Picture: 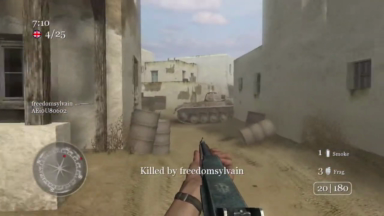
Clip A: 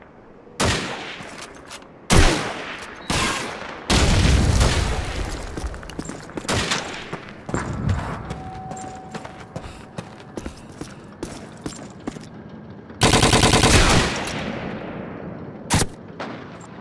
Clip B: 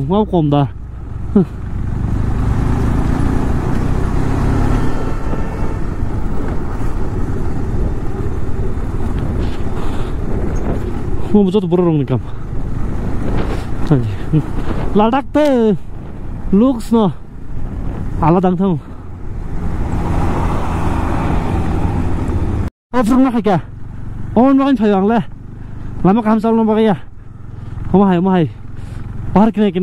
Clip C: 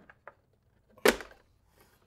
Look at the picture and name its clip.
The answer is A